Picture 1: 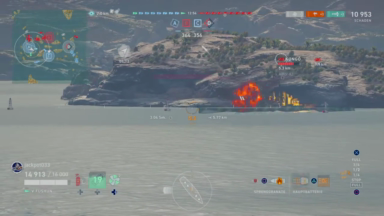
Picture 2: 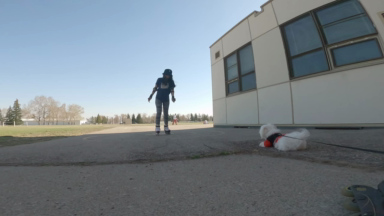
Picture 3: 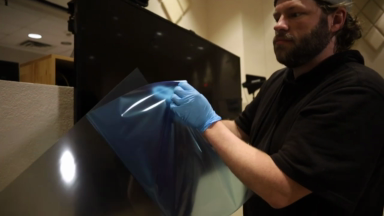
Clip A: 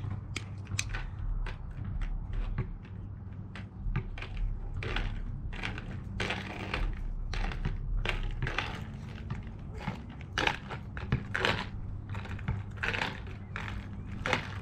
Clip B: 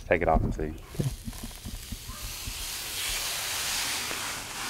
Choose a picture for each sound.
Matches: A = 2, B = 3